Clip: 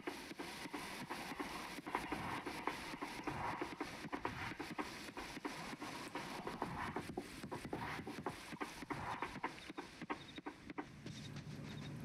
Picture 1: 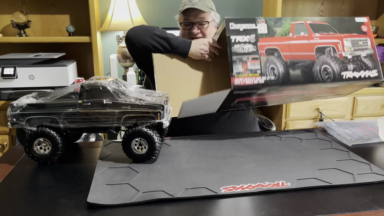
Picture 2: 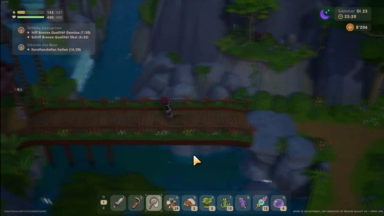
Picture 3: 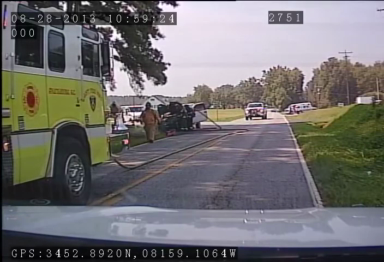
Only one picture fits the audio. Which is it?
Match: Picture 2